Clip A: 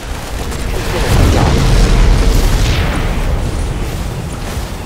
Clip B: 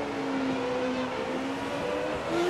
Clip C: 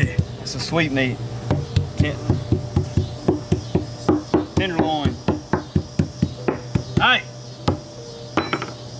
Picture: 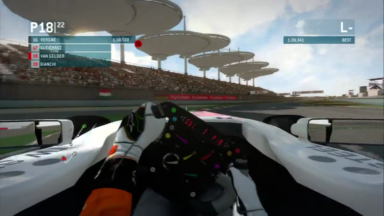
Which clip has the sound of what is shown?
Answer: B